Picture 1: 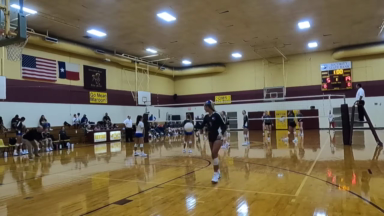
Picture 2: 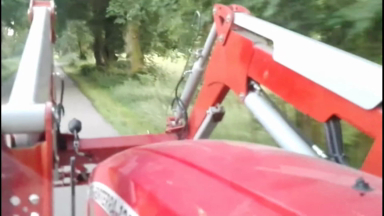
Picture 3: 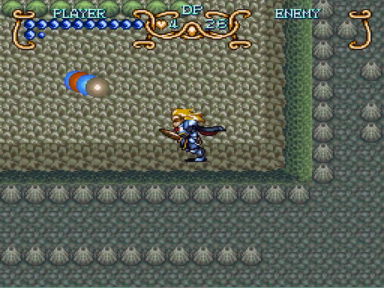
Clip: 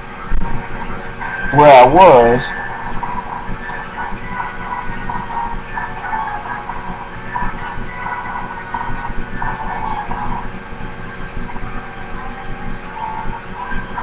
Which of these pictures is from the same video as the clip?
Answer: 3